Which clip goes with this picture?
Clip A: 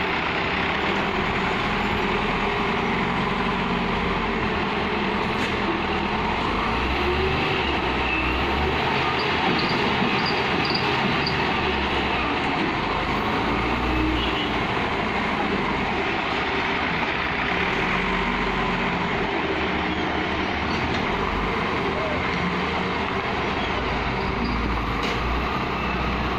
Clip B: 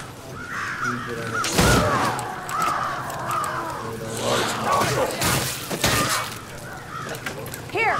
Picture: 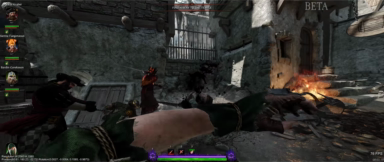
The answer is B